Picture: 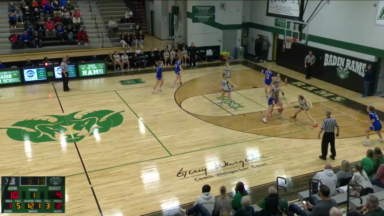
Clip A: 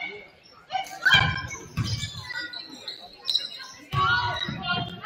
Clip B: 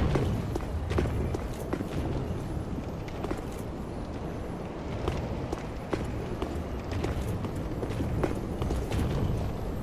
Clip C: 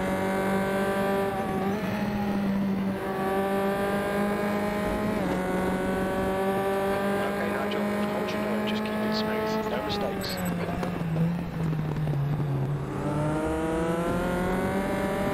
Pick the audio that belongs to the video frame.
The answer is A